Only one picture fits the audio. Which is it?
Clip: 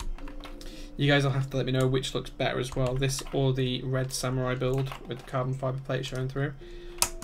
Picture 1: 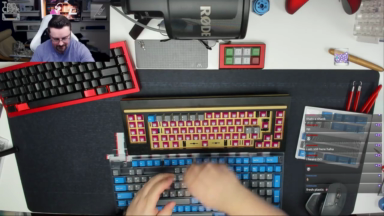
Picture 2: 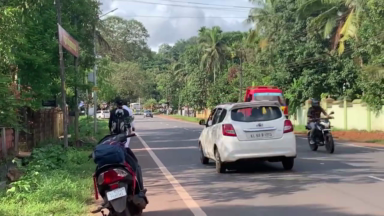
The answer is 1